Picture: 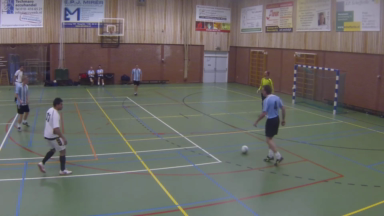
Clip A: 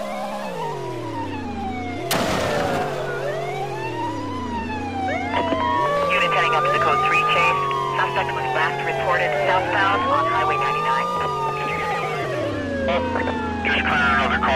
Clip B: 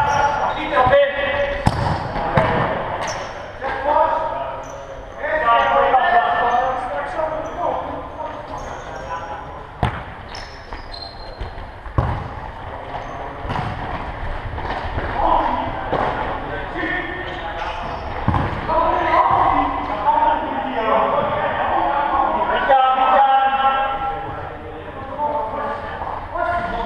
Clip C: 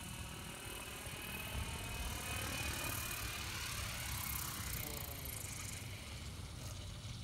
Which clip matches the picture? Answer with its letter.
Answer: B